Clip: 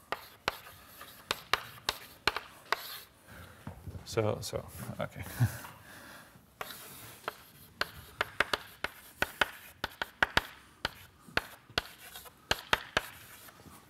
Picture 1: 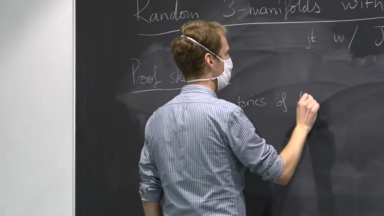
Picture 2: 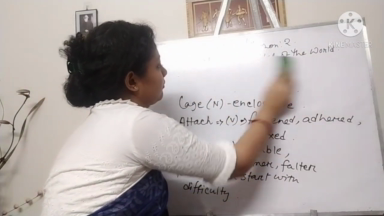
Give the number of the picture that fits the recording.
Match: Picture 1